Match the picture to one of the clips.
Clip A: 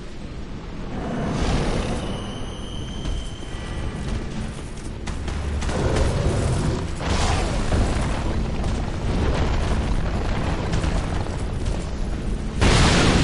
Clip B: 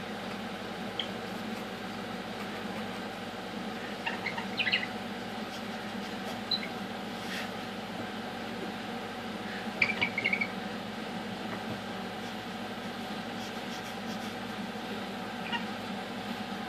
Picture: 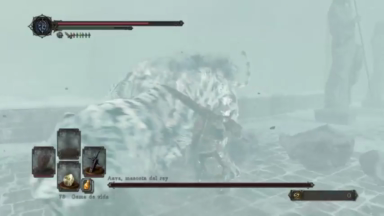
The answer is A